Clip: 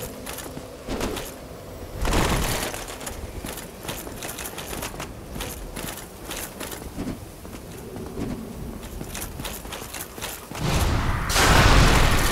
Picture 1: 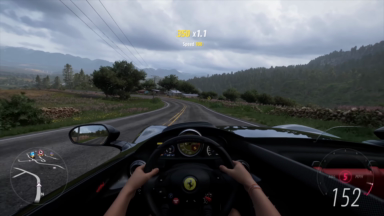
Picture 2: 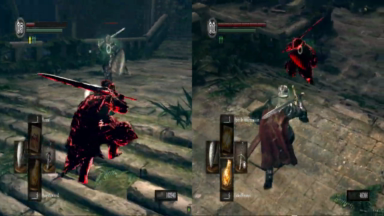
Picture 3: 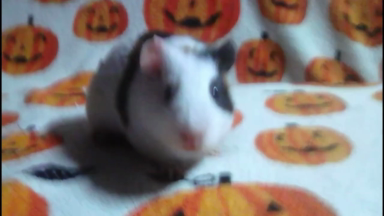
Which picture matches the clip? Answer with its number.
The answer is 2